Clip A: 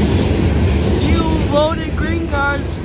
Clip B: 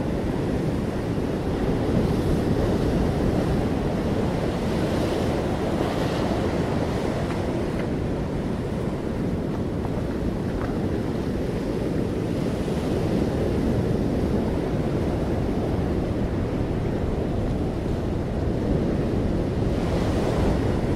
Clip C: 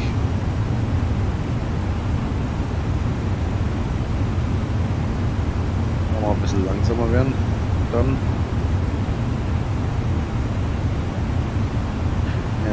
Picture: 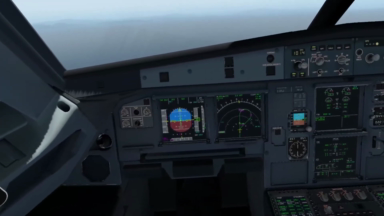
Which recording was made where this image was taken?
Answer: C